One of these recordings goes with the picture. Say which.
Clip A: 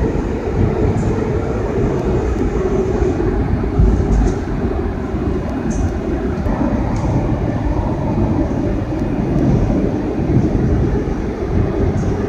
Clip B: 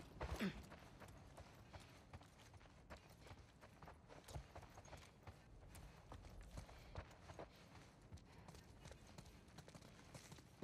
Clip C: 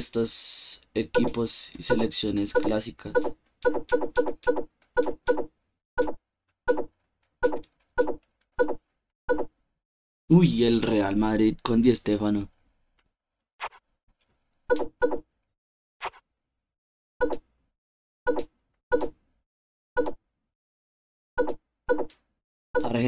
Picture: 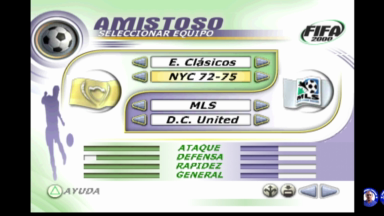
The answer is C